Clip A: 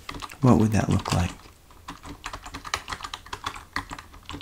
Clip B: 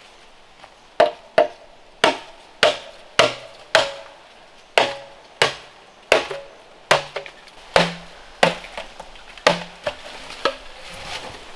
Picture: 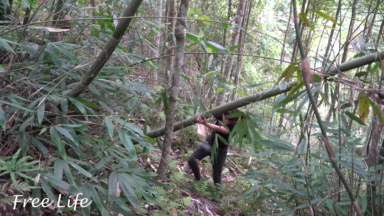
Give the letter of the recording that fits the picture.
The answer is B